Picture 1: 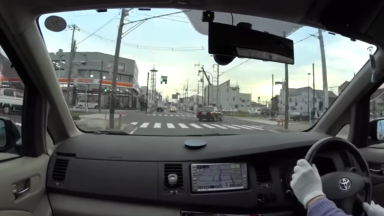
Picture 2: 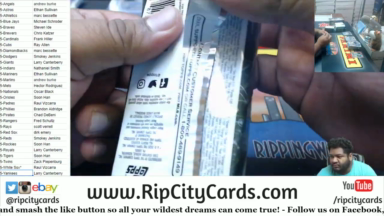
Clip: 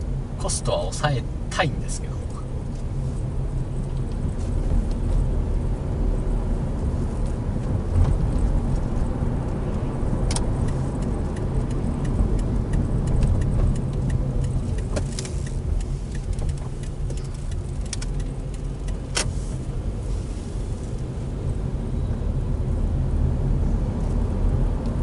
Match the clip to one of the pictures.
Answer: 1